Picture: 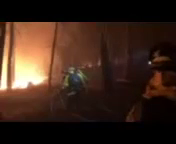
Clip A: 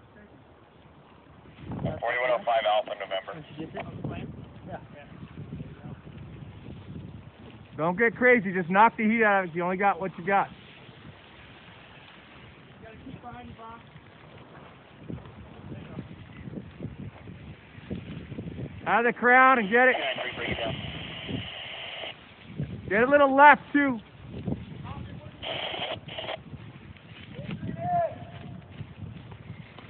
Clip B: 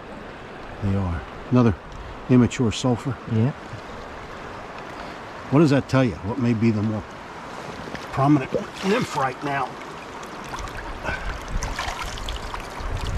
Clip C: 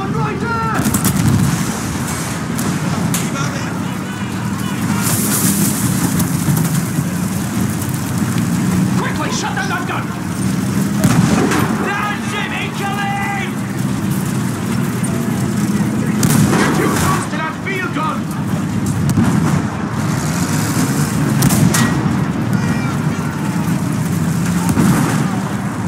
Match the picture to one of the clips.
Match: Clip A